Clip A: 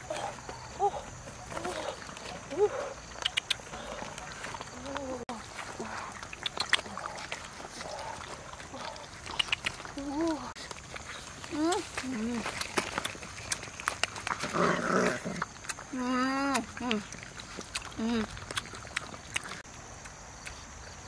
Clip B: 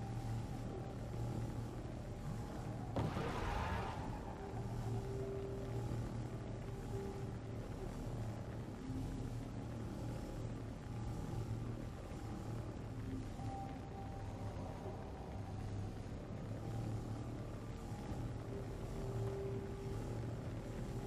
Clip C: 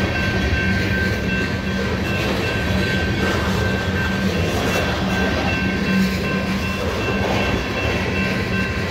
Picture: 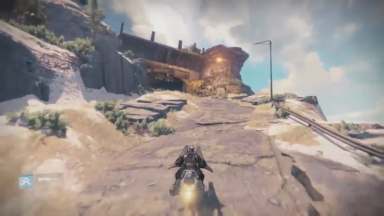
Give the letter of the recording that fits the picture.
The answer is B